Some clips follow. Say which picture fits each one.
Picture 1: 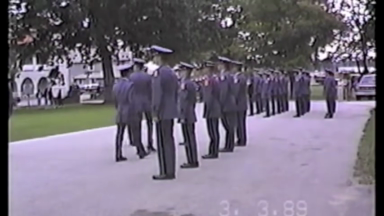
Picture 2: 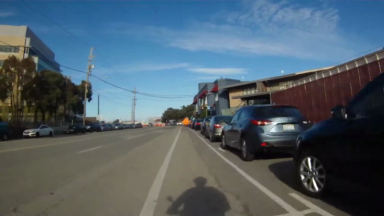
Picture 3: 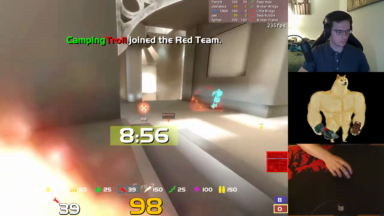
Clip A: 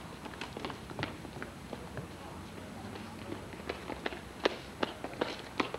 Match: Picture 1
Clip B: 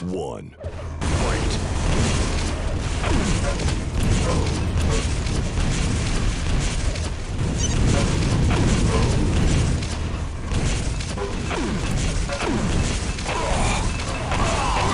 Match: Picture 3